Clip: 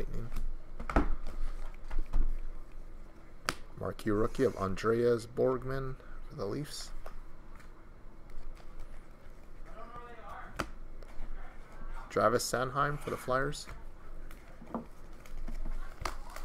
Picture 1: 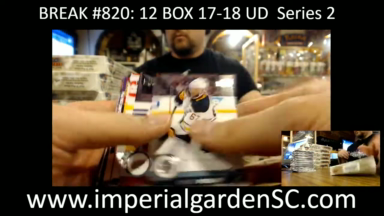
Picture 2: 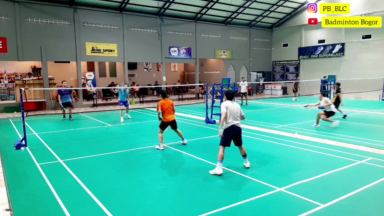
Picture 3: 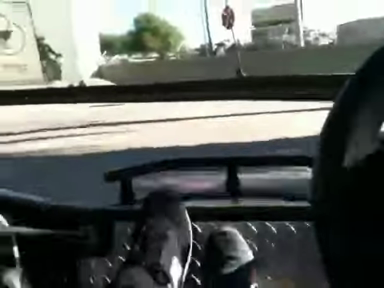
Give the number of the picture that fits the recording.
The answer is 1